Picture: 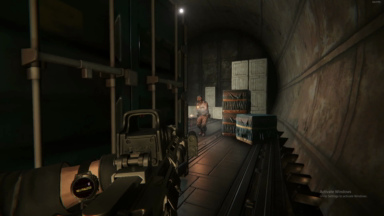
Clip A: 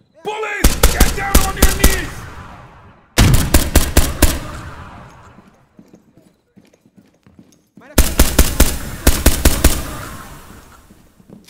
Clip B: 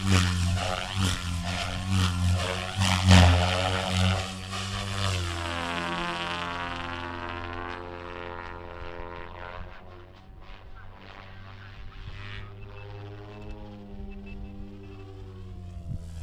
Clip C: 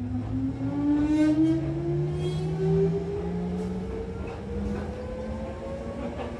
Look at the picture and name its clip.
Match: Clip A